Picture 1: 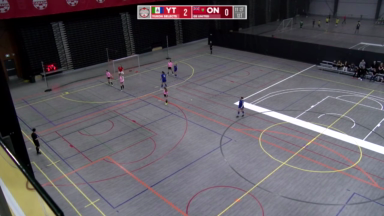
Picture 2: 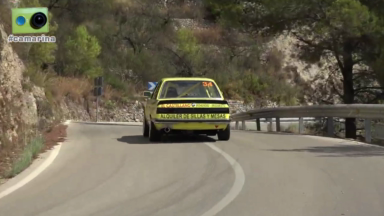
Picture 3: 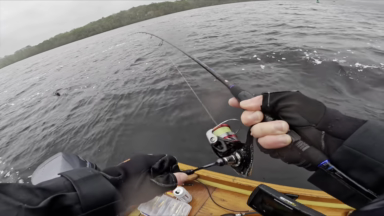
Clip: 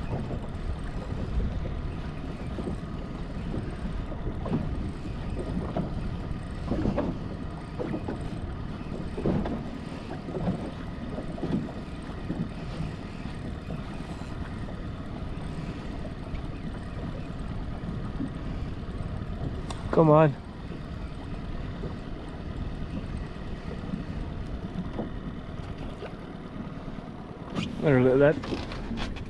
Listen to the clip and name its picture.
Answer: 3